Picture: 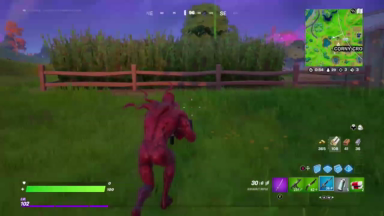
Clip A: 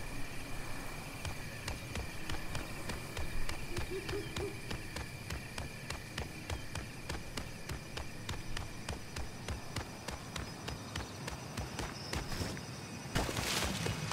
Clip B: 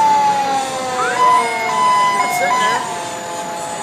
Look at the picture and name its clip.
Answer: A